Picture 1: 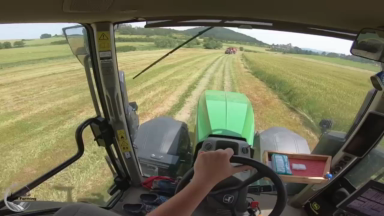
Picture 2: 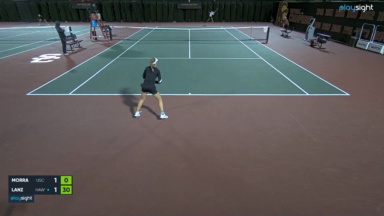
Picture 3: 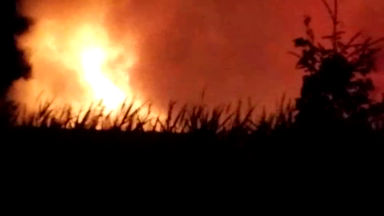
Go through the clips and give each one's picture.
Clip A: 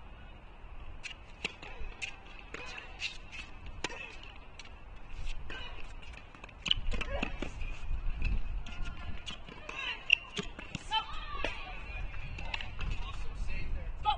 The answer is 2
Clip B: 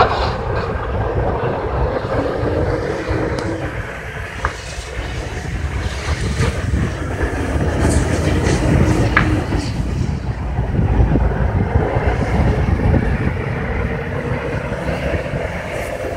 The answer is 3